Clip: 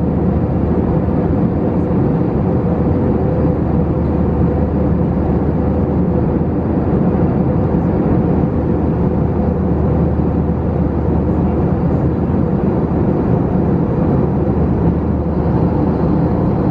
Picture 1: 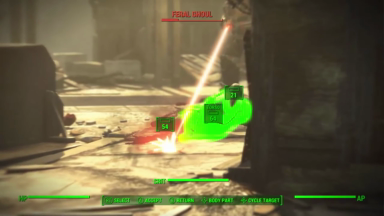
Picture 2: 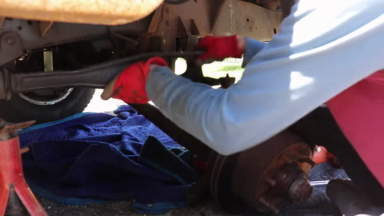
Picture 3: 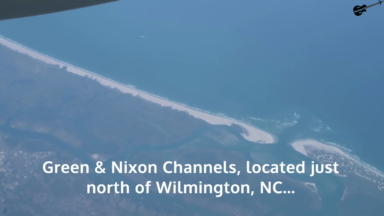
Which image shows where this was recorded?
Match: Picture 3